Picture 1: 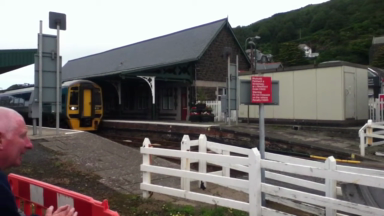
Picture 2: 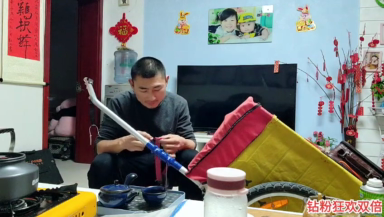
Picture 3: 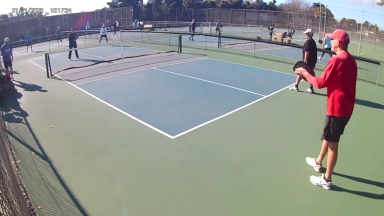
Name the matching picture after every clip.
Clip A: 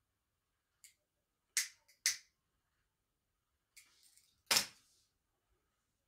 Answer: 2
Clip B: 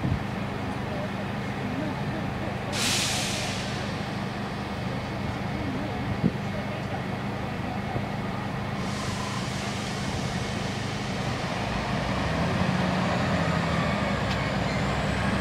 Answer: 1